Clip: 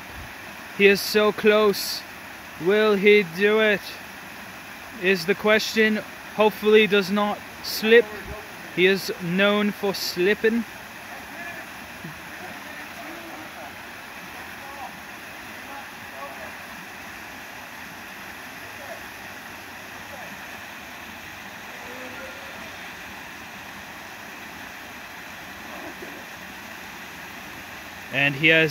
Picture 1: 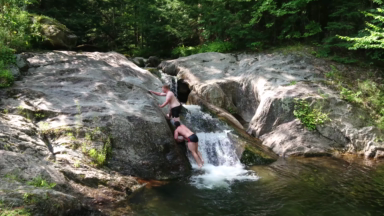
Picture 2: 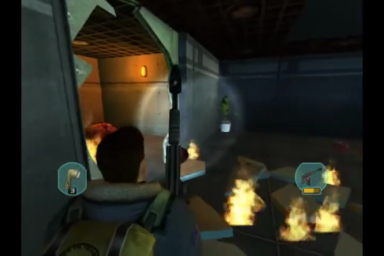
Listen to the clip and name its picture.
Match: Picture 1